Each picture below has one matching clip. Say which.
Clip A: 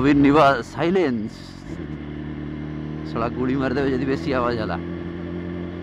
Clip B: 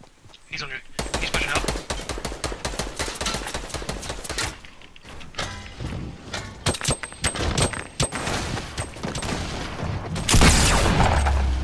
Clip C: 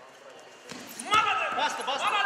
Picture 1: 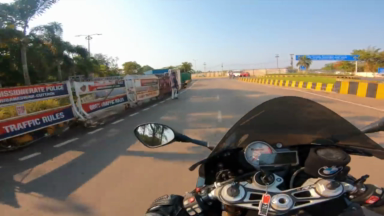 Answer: A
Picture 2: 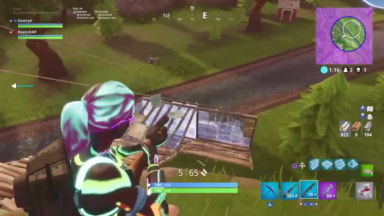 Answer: B